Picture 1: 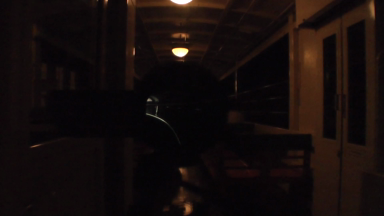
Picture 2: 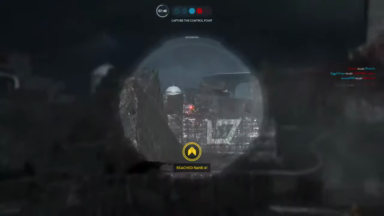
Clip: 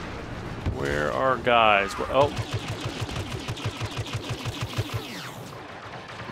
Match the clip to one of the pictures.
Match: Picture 2